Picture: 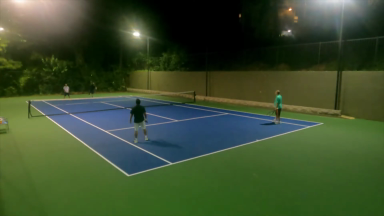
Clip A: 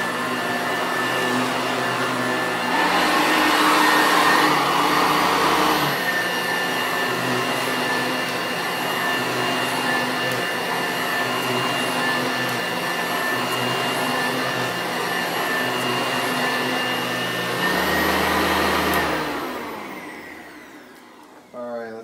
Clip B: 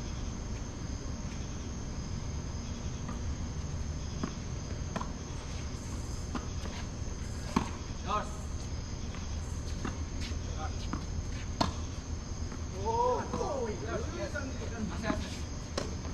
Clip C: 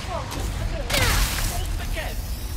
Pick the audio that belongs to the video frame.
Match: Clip B